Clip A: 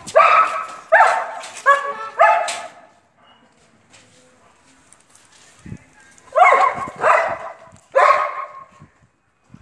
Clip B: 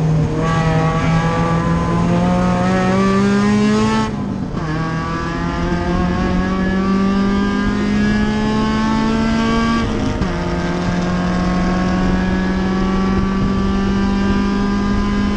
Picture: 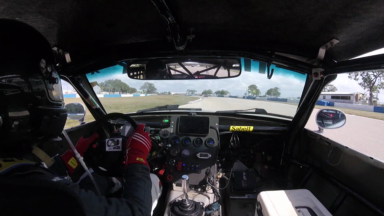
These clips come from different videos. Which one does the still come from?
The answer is B